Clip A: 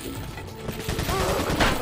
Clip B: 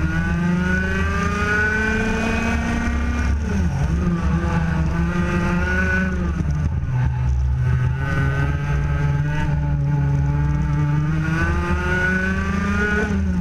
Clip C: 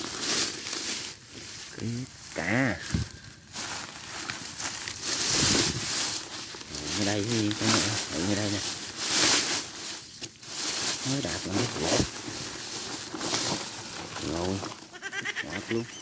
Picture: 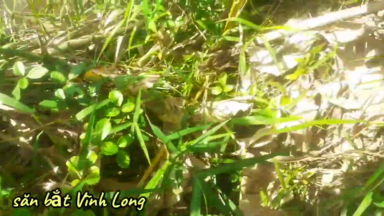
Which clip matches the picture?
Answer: C